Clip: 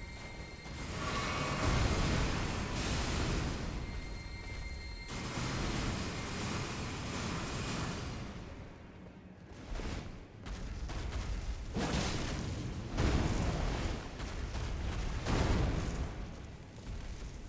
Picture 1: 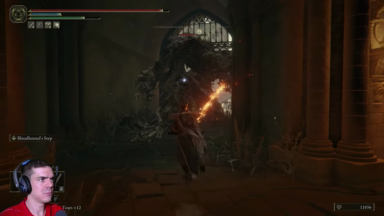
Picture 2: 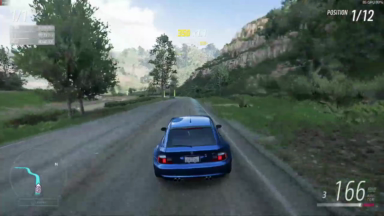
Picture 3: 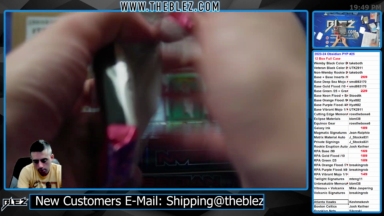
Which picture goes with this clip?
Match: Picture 1